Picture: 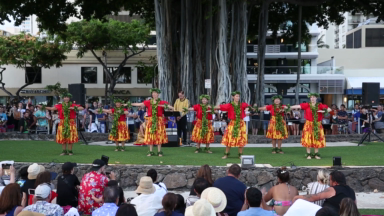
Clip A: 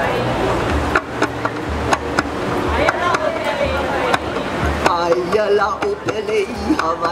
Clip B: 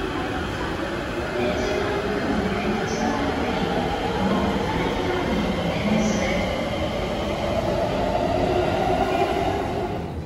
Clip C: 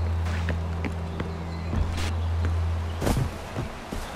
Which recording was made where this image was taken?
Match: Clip A